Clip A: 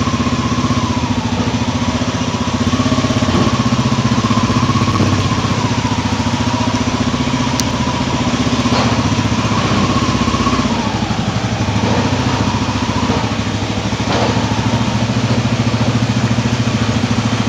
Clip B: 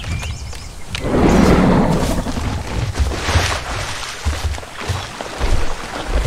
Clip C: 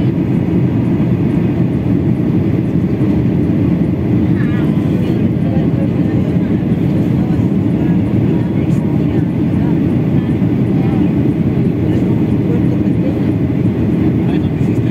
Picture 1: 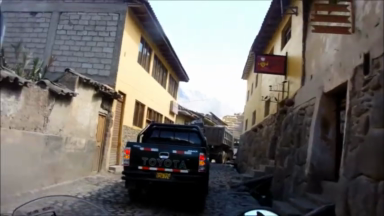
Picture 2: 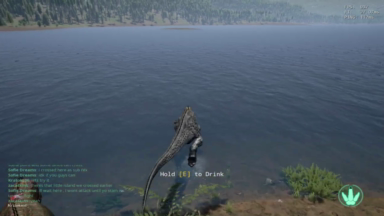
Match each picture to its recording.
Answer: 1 A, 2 B